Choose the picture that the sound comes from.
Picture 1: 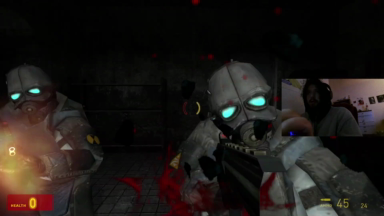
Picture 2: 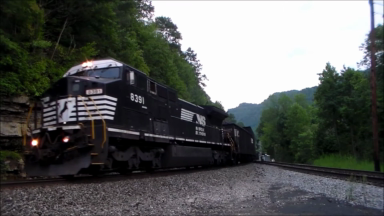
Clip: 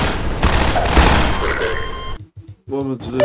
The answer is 1